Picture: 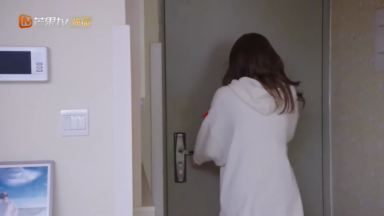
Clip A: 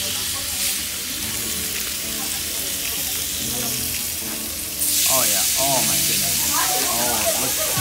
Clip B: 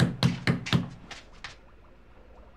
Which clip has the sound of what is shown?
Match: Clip B